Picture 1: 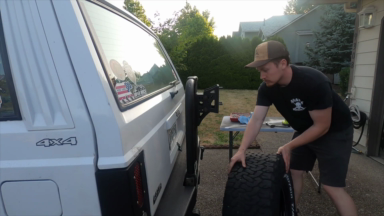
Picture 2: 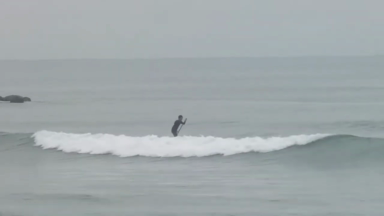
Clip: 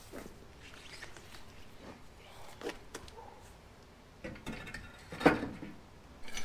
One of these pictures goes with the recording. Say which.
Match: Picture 1